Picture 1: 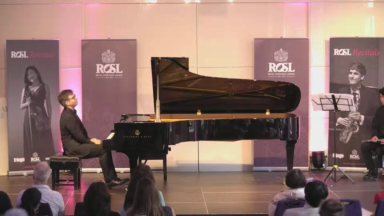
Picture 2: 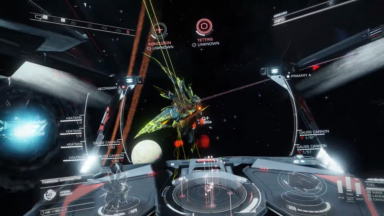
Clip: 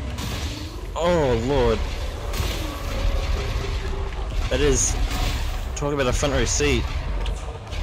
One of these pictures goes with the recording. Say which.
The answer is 2